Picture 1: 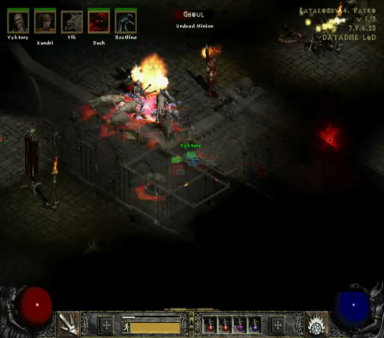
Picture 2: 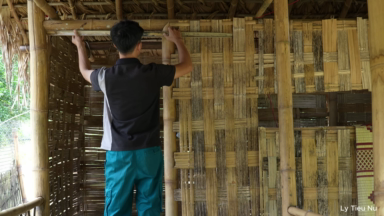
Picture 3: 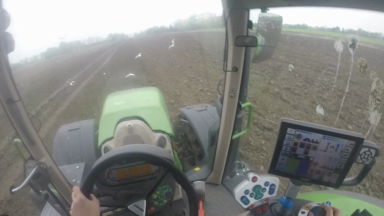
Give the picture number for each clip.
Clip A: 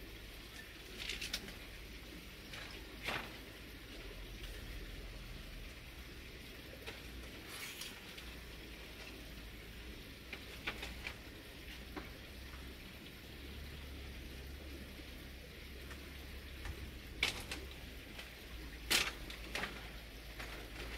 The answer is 2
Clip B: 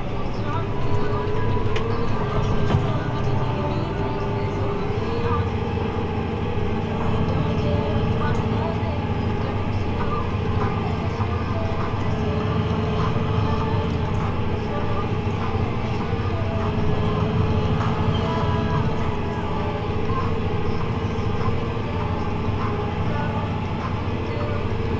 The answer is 3